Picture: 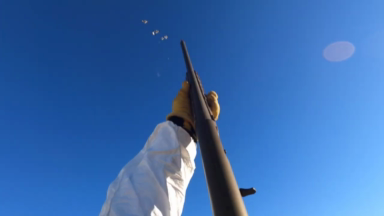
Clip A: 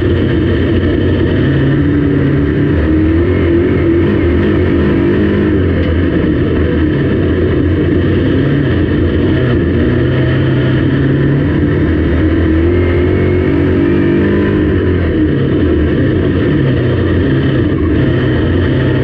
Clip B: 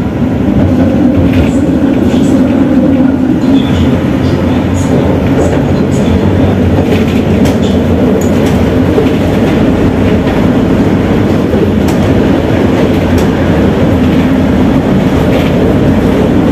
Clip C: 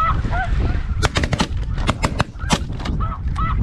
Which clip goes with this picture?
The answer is C